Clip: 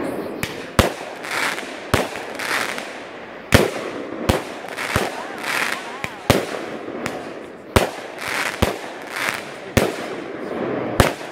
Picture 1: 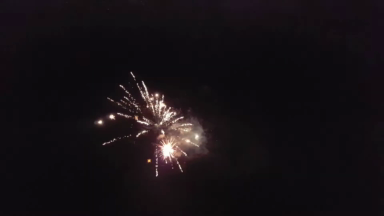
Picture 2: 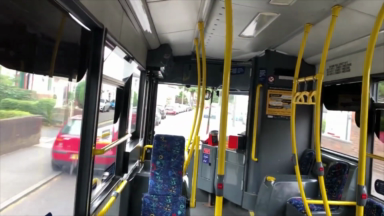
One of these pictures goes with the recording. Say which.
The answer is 1